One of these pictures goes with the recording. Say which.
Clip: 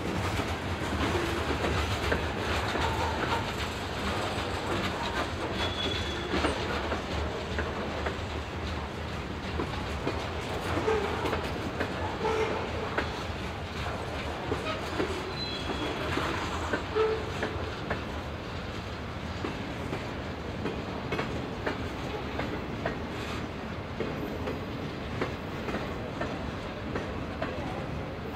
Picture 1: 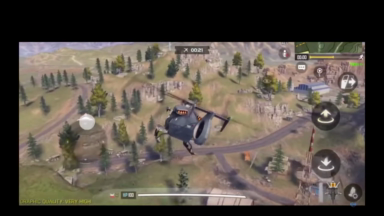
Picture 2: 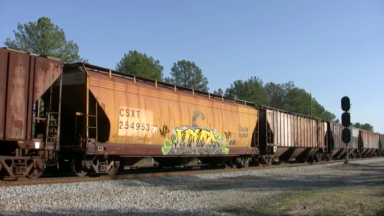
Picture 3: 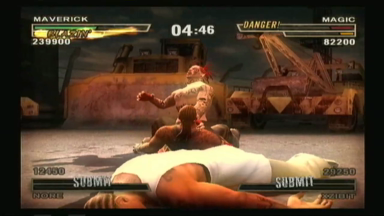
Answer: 2